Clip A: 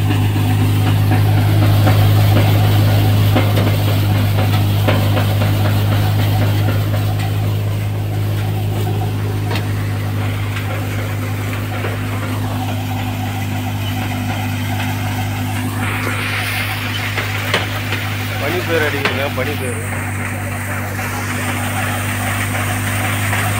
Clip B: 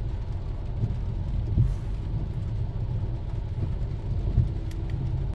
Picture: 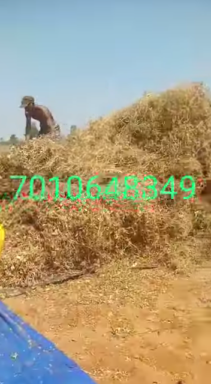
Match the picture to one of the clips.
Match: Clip A